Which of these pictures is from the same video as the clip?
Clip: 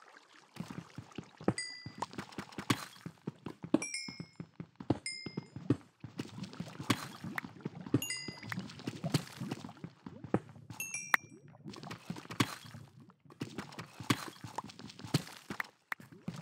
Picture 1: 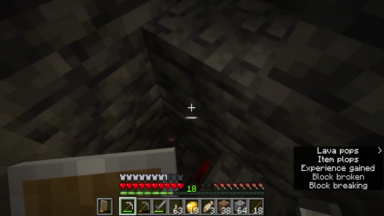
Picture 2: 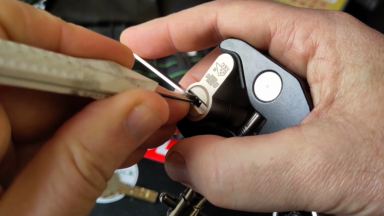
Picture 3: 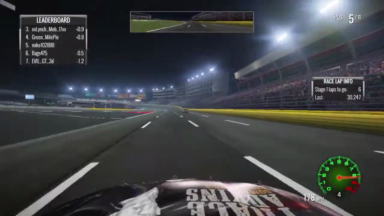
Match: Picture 1